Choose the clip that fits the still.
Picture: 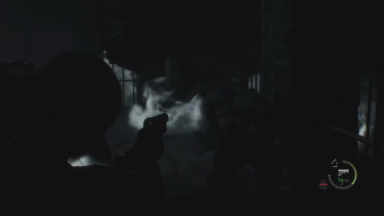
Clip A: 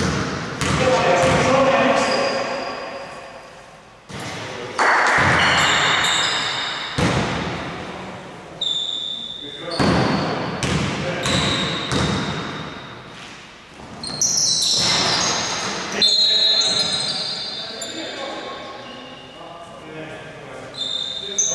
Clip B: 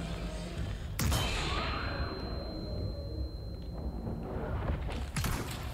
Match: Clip B